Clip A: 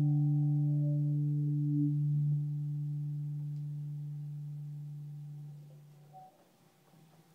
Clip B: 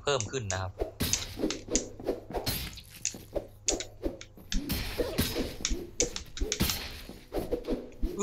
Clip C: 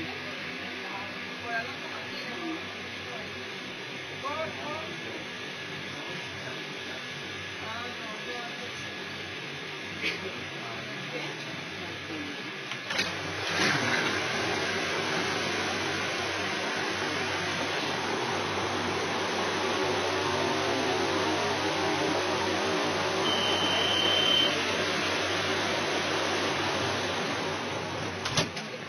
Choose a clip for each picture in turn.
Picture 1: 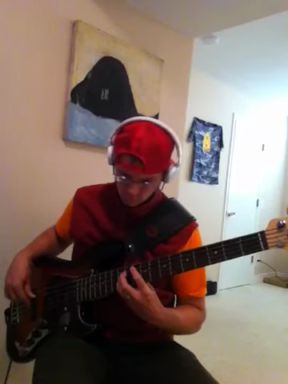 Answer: A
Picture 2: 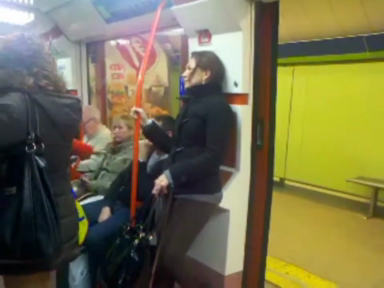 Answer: C